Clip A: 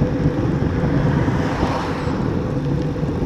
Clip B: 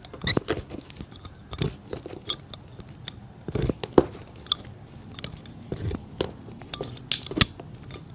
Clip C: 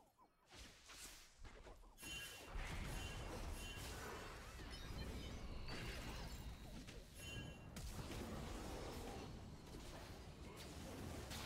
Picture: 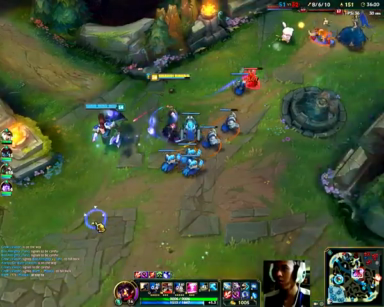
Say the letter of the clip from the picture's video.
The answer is C